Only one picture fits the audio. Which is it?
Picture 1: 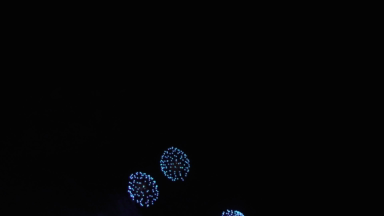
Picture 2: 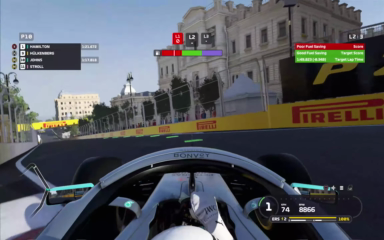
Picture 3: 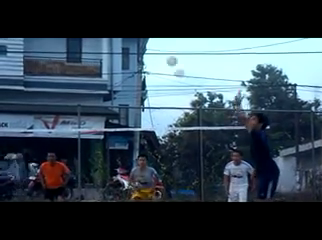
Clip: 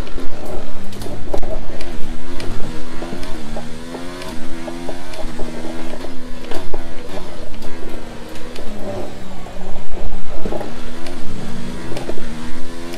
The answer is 2